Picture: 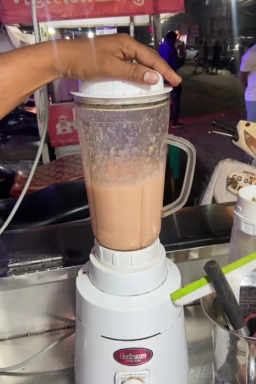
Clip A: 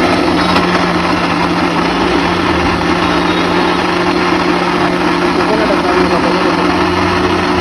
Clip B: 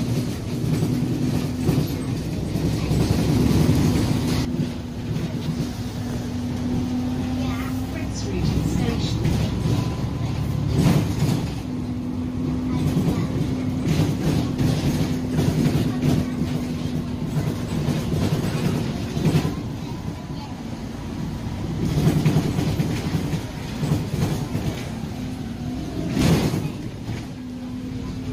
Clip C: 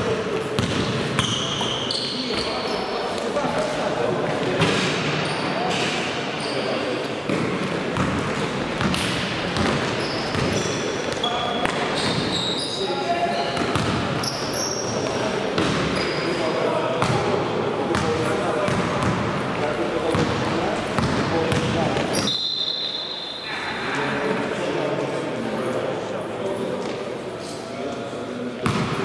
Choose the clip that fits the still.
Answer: A